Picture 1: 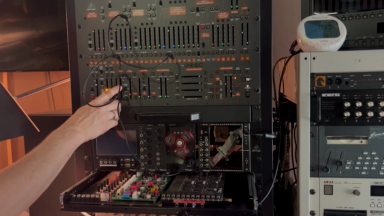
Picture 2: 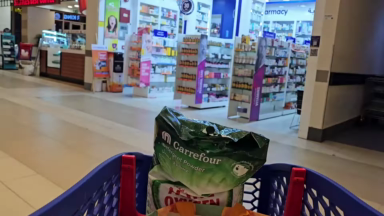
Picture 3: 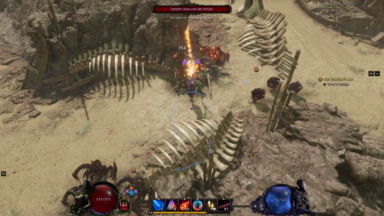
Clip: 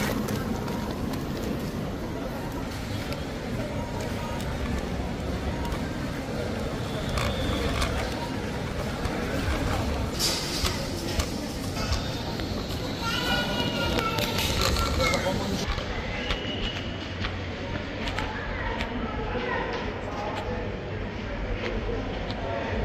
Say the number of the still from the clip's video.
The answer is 2